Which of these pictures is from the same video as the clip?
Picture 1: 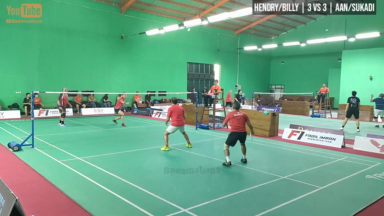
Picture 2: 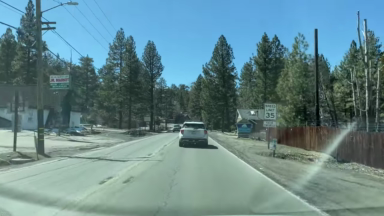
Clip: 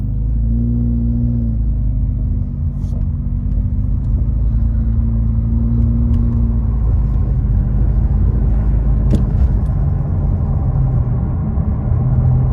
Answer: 2